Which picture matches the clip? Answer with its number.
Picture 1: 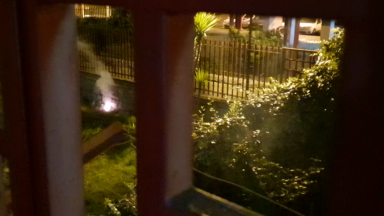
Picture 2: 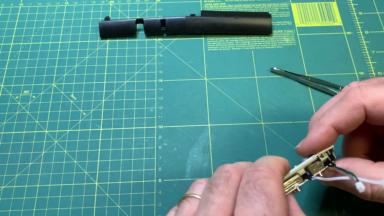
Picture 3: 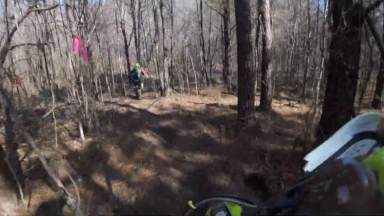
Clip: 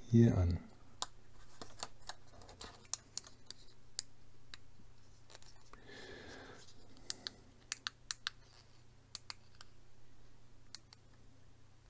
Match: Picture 2